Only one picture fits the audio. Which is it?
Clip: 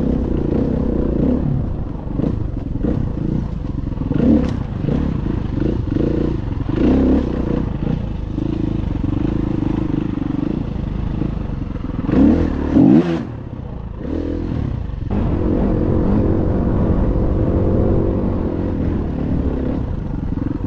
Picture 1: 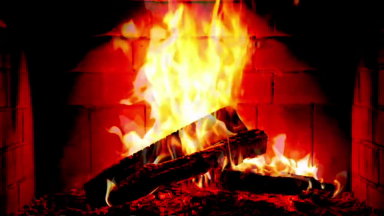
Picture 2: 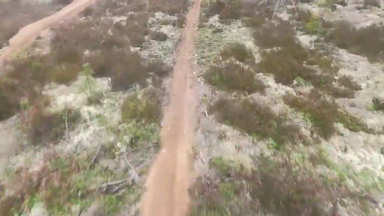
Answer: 2